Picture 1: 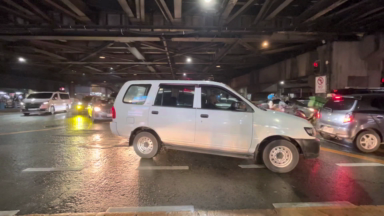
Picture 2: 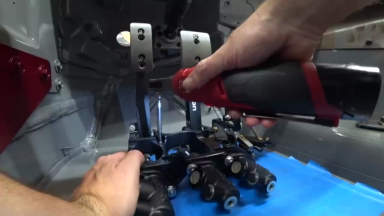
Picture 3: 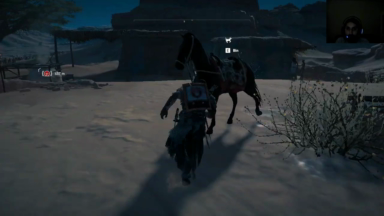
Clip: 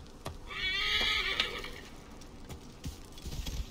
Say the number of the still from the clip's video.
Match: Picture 3